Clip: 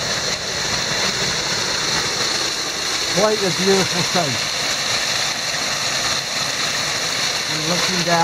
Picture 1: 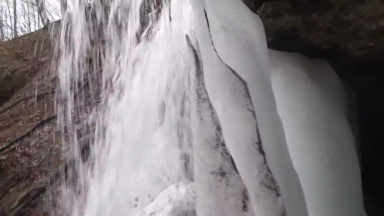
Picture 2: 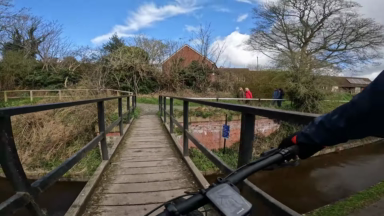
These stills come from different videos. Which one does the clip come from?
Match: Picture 1